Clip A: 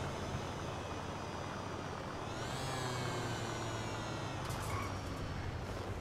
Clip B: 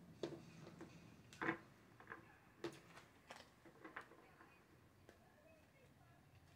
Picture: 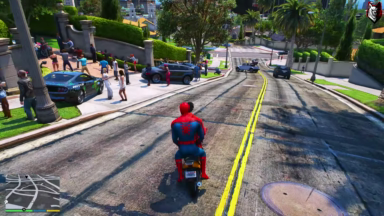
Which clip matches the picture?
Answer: A